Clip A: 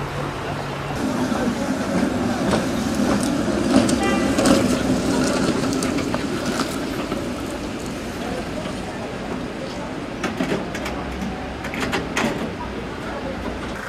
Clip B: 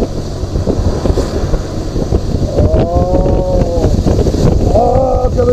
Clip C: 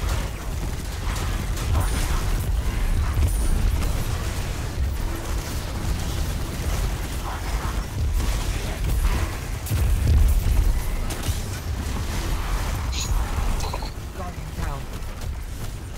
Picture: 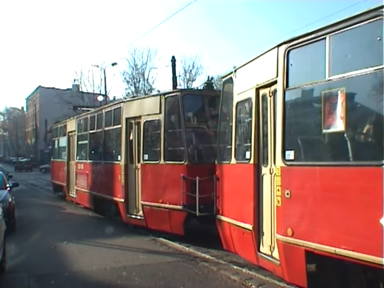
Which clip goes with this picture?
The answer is A